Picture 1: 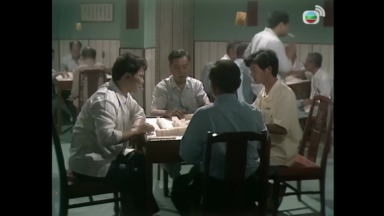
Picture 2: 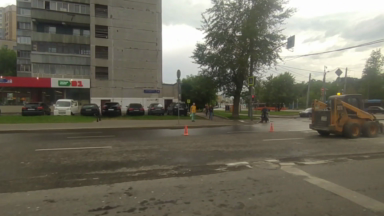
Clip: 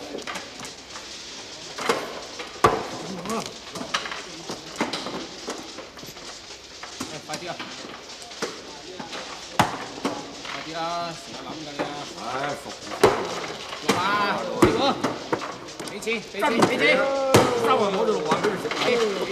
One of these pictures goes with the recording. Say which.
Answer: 1